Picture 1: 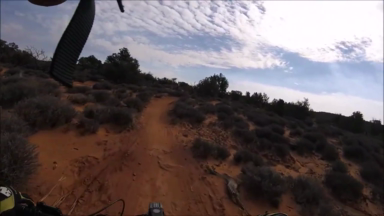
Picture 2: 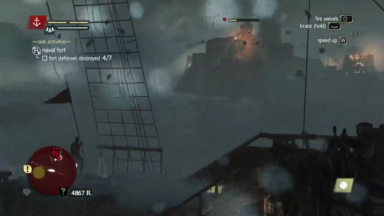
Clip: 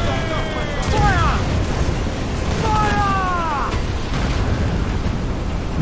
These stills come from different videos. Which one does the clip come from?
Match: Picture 2